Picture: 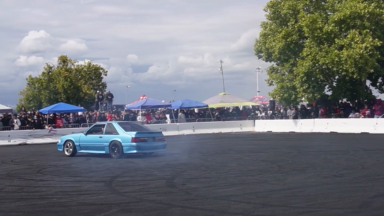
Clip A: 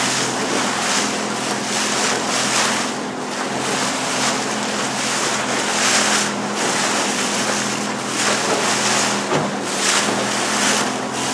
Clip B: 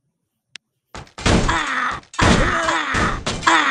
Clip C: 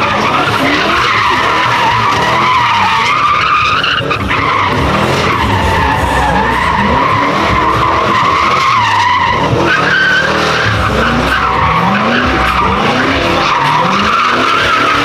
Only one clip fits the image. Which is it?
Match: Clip C